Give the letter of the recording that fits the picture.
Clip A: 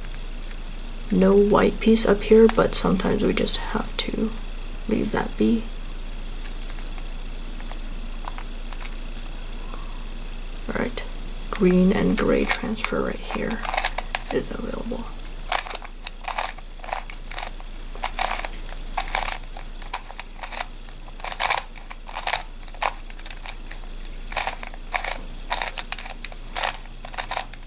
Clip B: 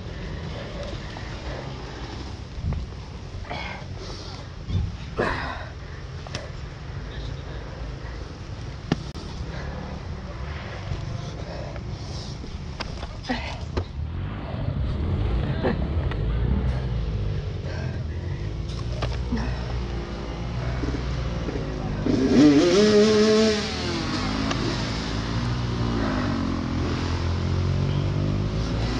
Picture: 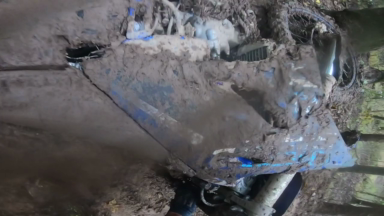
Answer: B